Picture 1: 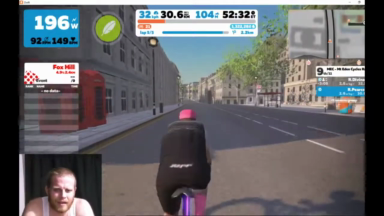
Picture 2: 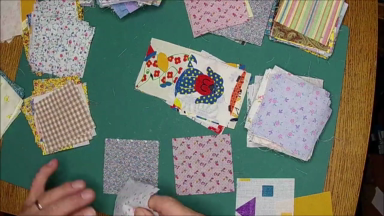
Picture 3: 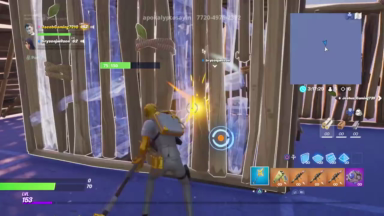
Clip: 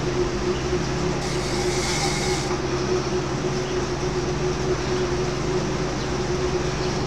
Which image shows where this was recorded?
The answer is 1